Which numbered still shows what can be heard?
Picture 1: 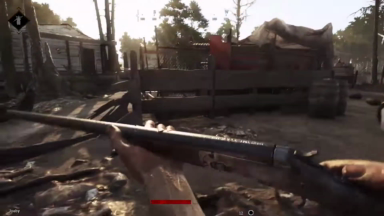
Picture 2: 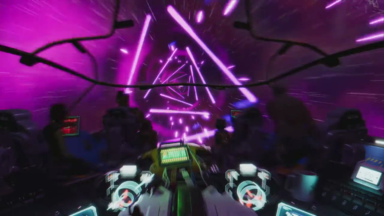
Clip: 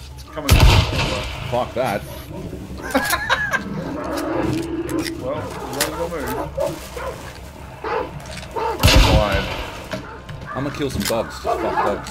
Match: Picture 1